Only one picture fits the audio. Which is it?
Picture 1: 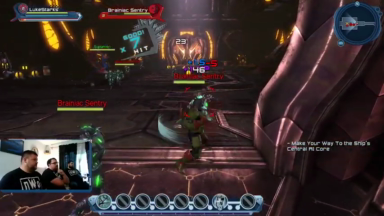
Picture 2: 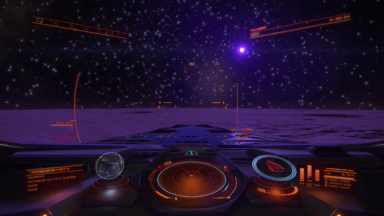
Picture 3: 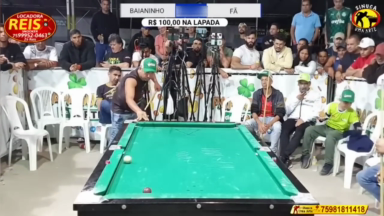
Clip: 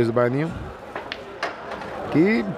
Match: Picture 3